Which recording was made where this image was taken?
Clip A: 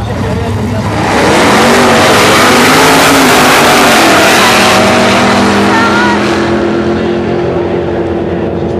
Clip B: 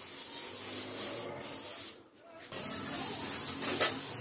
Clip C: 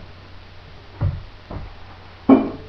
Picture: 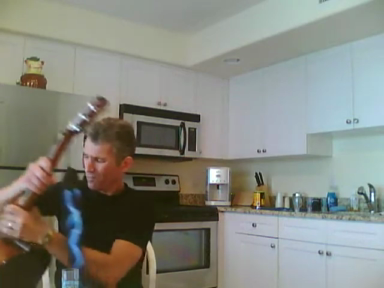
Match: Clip C